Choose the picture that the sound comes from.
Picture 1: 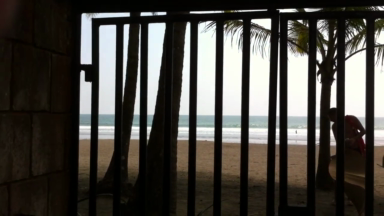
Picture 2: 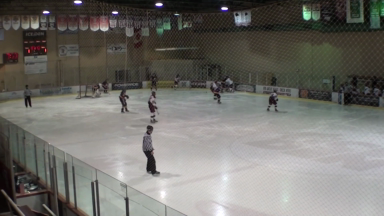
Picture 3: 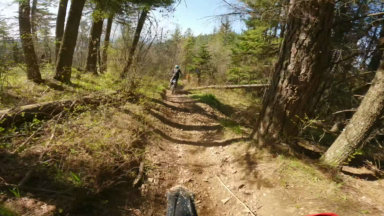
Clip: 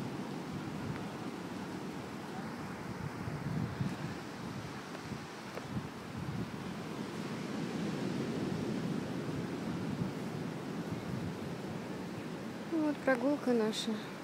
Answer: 1